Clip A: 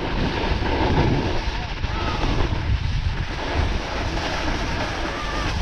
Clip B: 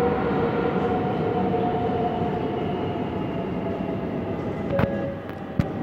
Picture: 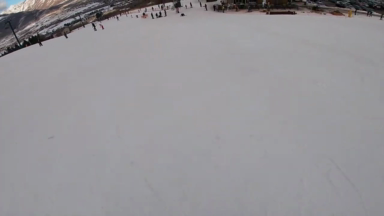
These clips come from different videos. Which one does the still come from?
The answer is A